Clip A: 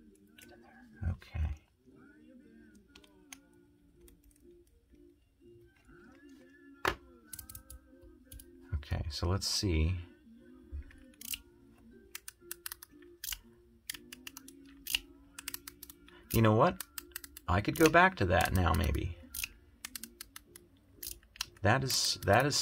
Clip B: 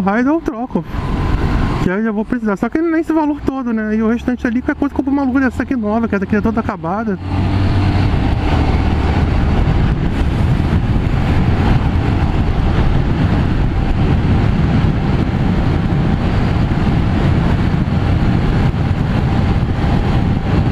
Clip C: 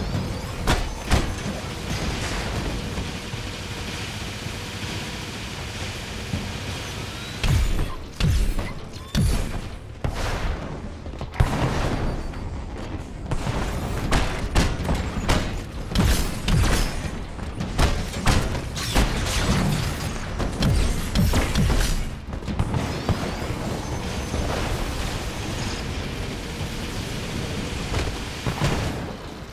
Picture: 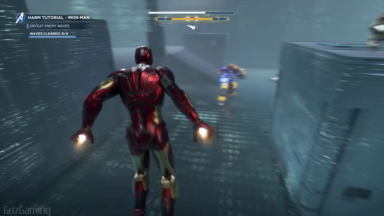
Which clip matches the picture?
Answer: C